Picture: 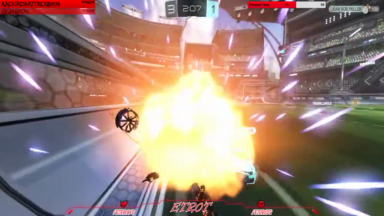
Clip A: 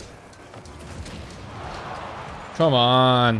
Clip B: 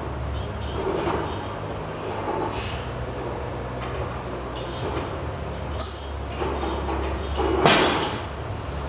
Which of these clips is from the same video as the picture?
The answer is A